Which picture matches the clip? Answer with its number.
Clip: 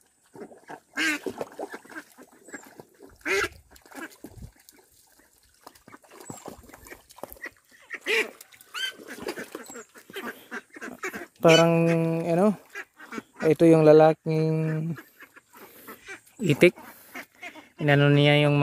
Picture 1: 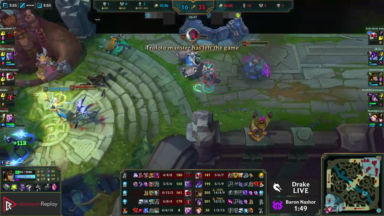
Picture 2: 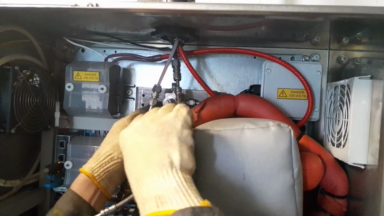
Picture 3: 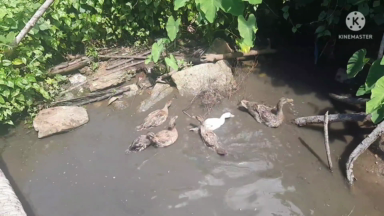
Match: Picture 3